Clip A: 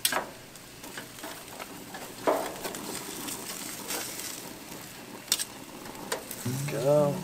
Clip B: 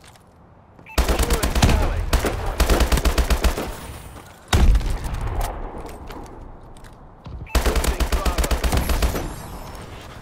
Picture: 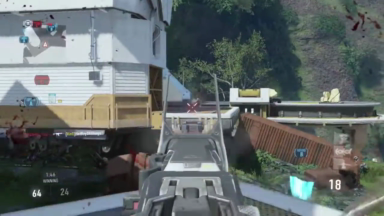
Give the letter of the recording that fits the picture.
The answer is B